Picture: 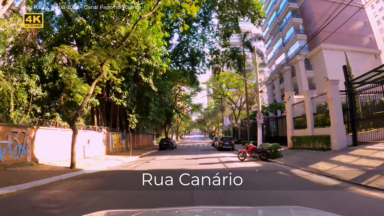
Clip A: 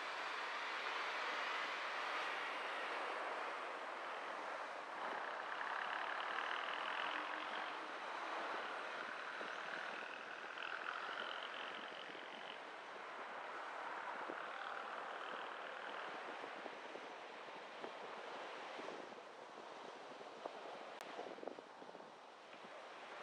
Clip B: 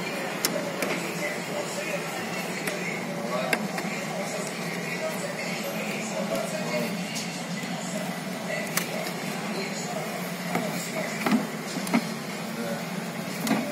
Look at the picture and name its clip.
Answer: A